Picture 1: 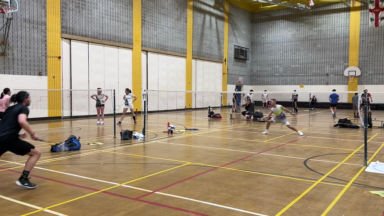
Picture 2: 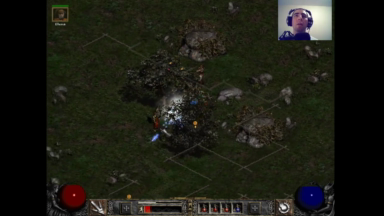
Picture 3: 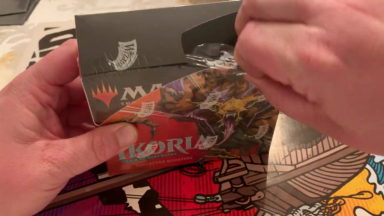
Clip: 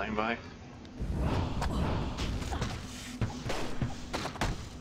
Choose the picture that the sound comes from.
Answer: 2